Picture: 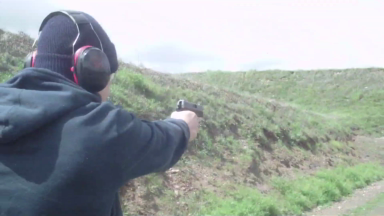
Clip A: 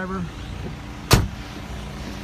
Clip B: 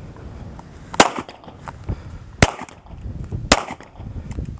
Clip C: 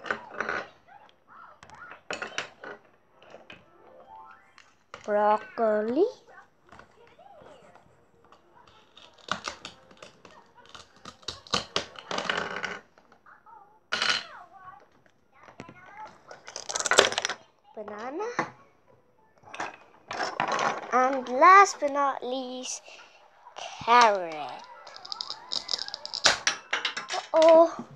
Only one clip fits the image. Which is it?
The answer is B